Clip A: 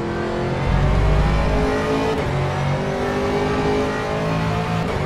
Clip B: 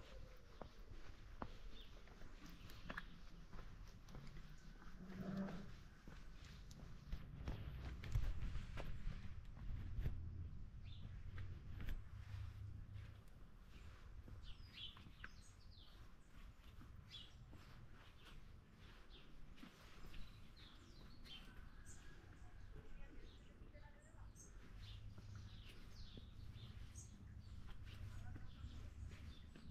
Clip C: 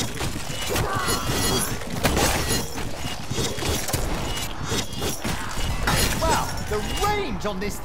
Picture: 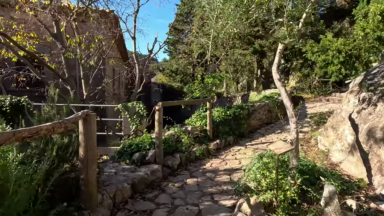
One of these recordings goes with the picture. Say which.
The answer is B